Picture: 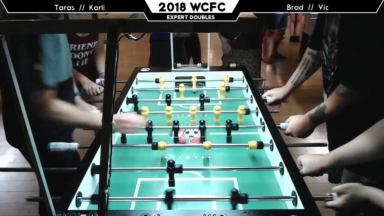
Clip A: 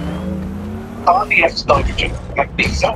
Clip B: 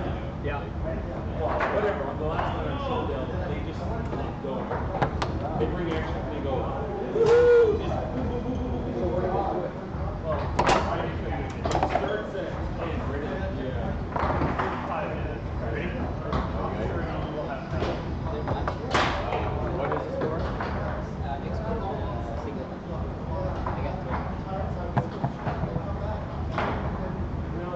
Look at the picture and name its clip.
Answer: B